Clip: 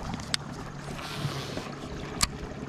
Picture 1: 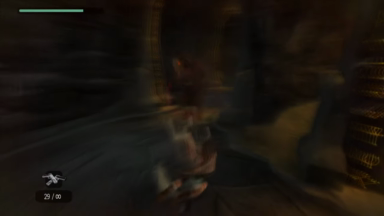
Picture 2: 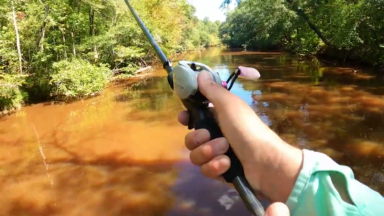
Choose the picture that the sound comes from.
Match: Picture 2